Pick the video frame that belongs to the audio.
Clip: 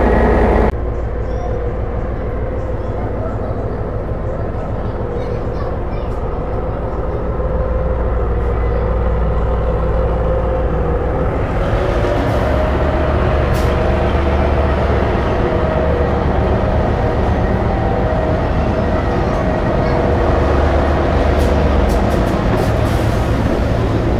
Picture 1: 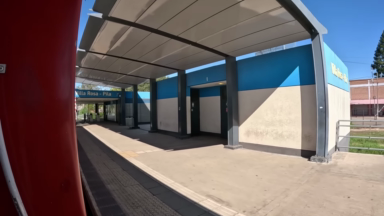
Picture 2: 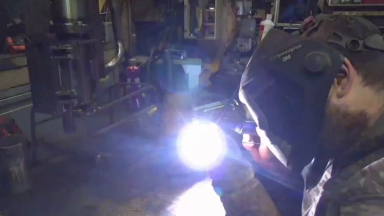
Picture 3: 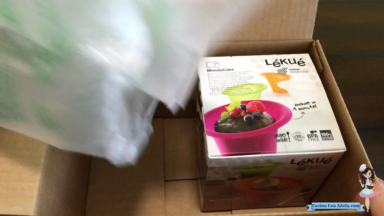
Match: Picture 1